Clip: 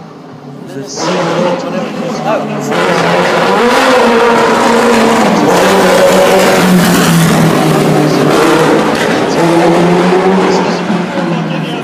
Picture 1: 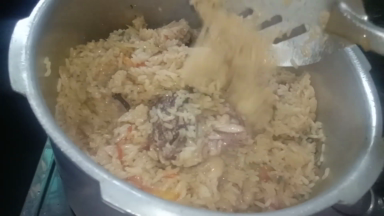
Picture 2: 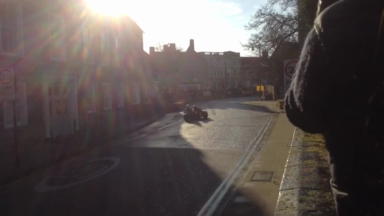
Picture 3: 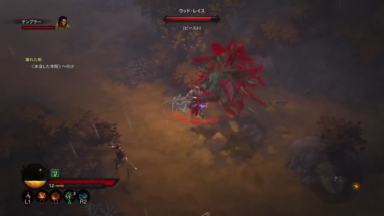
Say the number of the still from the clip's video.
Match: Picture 2